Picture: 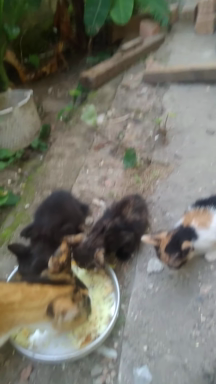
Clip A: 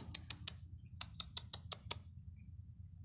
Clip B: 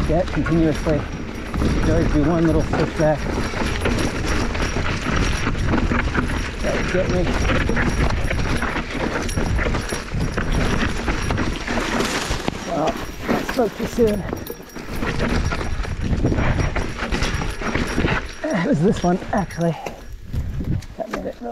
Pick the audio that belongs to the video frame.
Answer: A